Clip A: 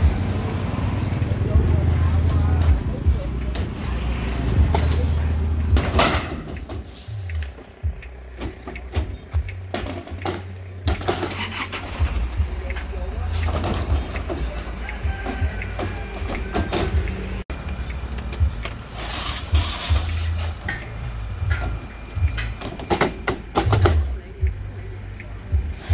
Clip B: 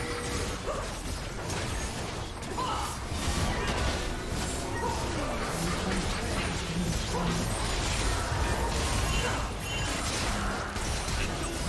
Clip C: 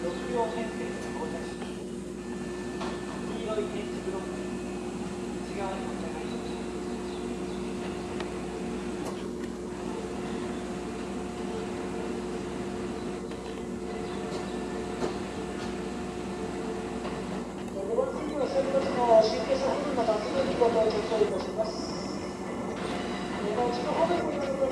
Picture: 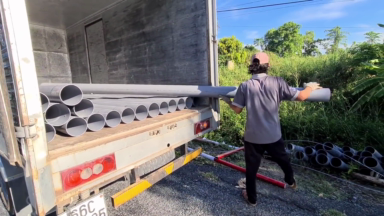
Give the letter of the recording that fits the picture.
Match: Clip A